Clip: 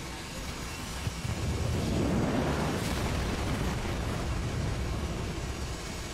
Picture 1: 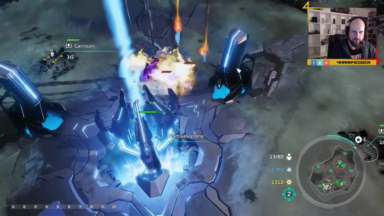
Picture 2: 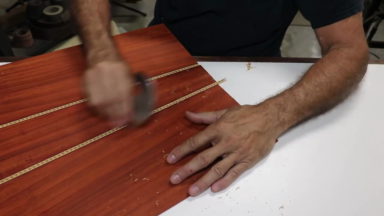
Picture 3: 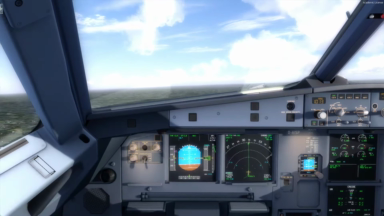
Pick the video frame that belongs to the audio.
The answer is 1